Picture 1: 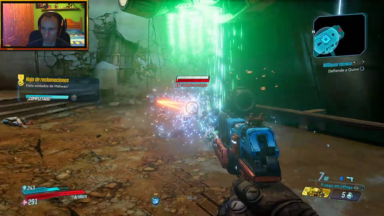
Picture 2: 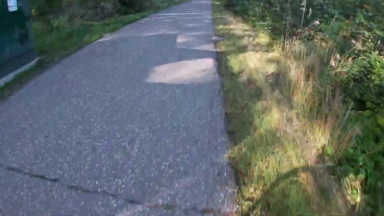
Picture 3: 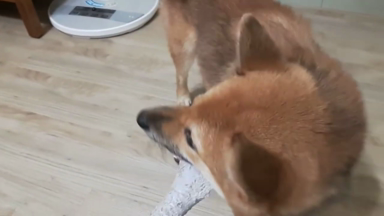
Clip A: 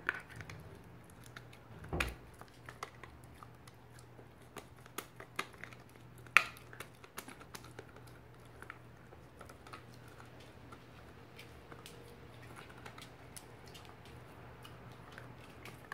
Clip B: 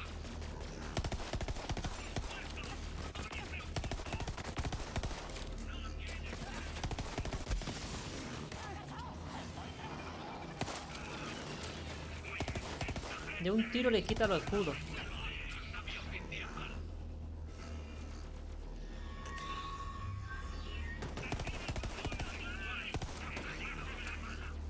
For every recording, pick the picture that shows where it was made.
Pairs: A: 3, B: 1